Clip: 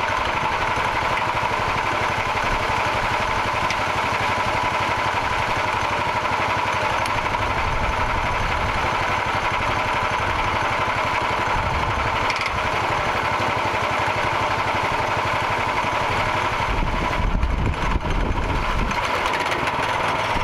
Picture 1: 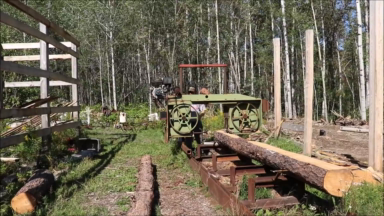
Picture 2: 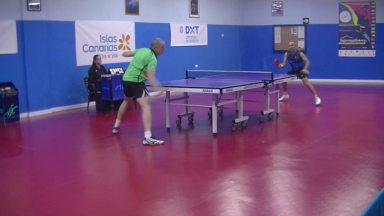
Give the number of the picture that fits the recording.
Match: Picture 1